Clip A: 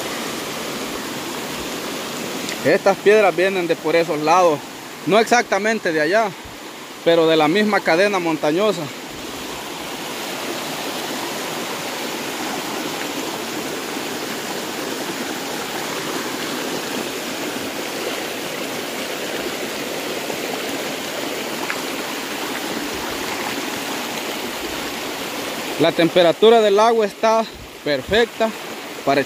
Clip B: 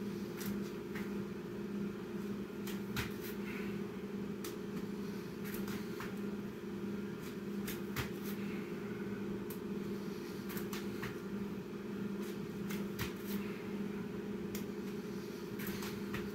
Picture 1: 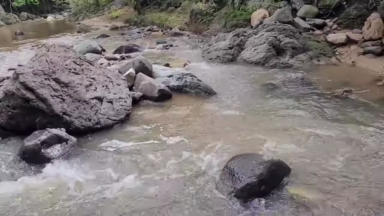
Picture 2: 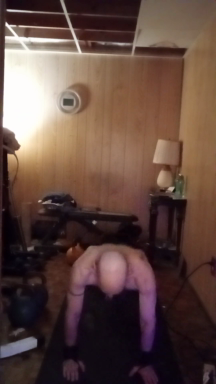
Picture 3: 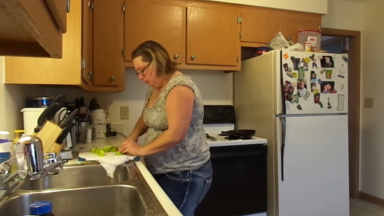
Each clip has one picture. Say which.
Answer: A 1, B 2